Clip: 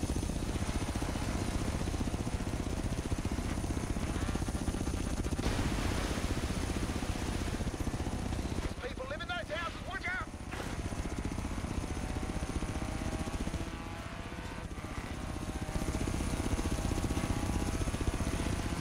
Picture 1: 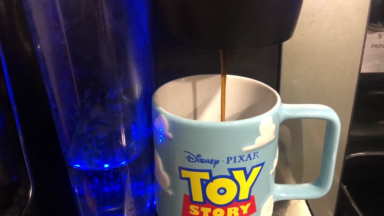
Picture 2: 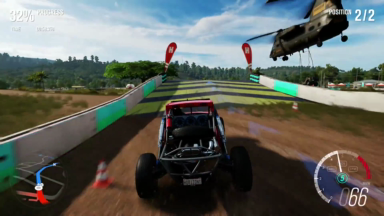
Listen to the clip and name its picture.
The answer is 2